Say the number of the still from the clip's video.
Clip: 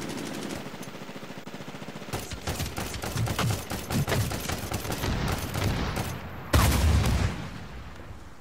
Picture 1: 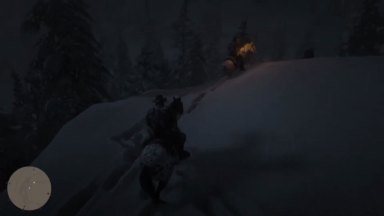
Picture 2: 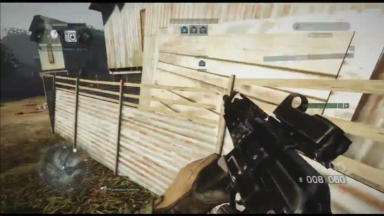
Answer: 2